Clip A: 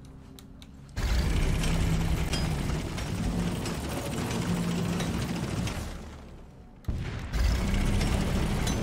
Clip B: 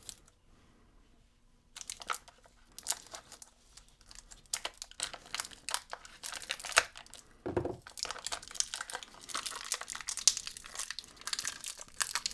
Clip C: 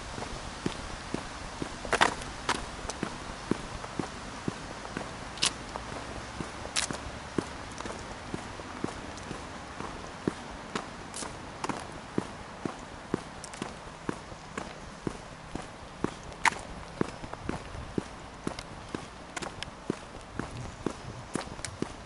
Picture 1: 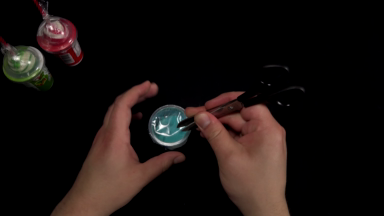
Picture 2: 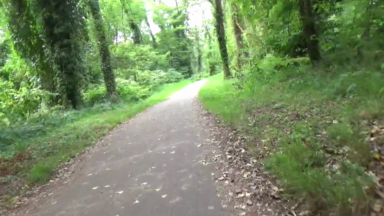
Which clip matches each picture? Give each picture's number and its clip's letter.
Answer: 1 B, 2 C